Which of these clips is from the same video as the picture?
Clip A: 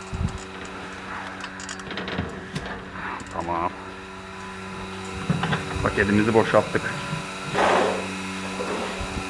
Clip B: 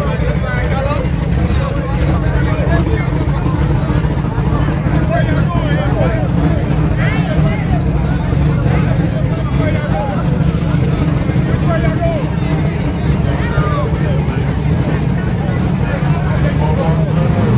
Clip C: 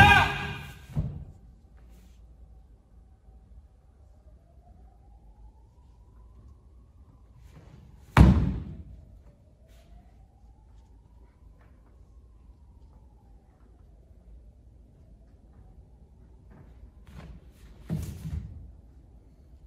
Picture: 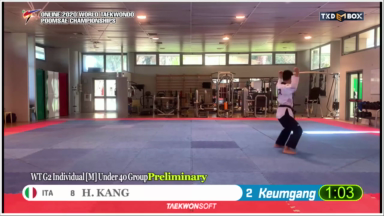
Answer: C